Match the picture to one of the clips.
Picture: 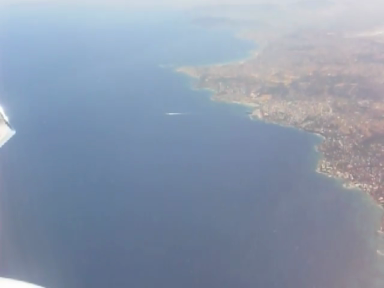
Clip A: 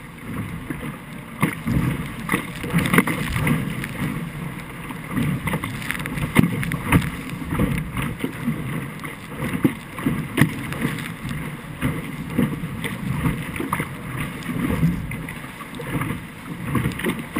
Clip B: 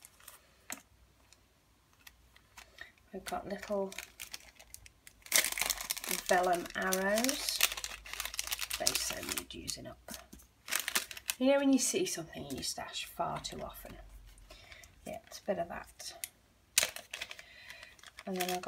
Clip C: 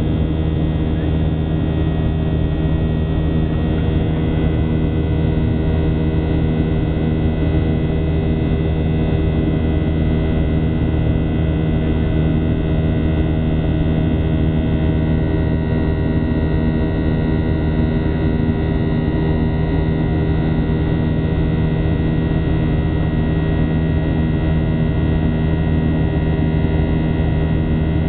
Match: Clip C